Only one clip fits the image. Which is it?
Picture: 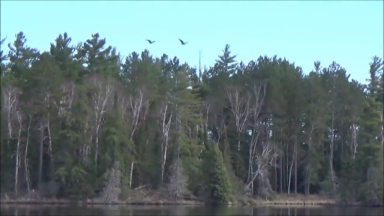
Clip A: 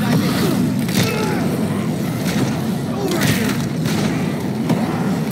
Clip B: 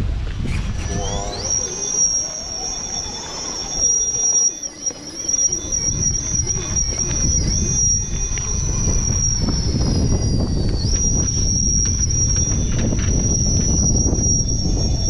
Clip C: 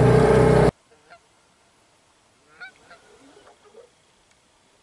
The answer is C